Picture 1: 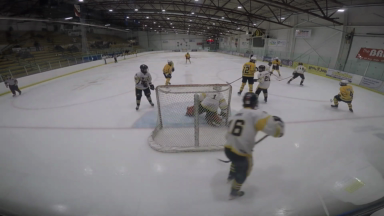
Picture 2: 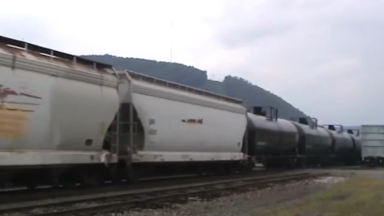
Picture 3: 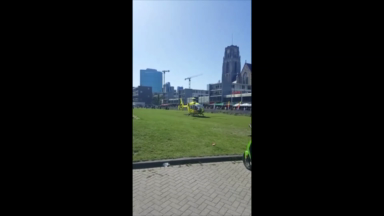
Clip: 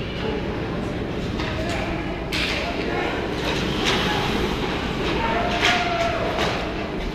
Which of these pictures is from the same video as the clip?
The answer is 1